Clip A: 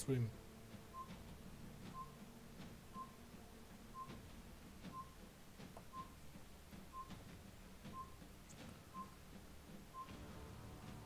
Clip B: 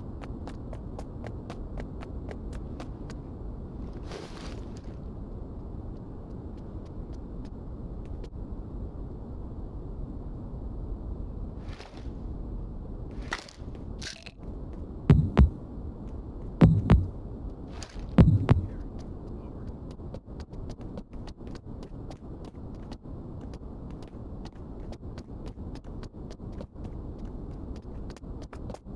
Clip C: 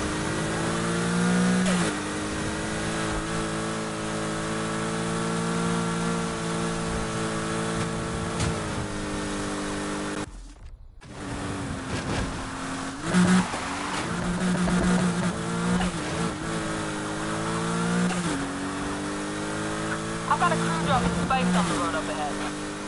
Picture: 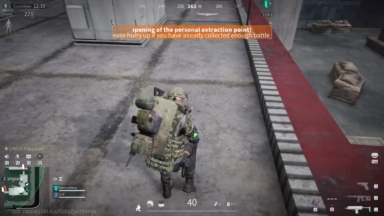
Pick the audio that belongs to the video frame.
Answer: B